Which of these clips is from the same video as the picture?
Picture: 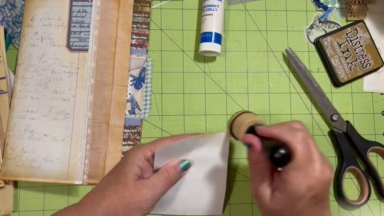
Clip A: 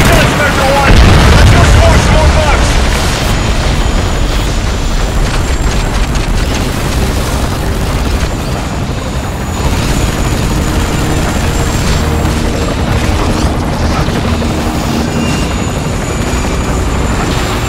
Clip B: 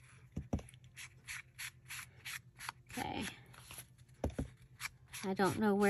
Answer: B